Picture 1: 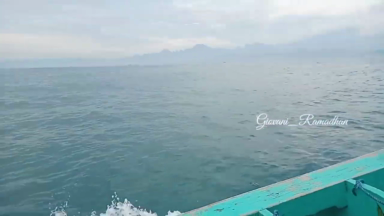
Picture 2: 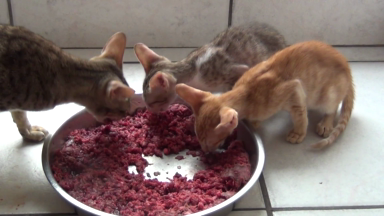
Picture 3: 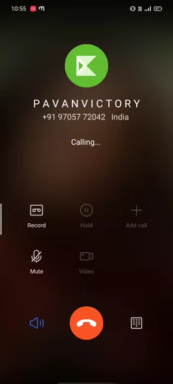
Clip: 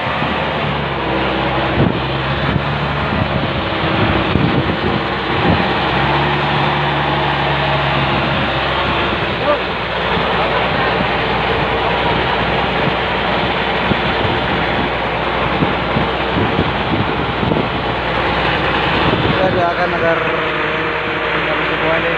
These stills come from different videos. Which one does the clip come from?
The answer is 1